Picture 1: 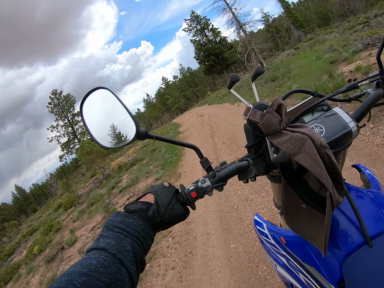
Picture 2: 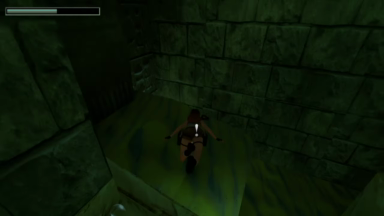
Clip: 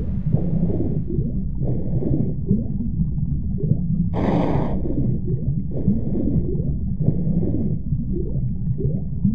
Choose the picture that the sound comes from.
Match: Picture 2